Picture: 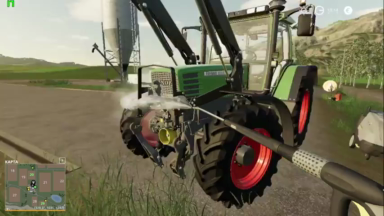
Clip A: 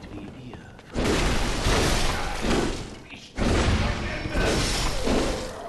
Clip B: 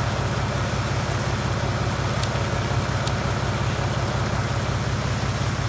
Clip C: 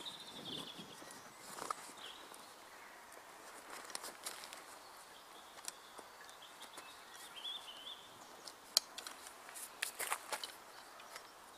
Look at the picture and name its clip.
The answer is B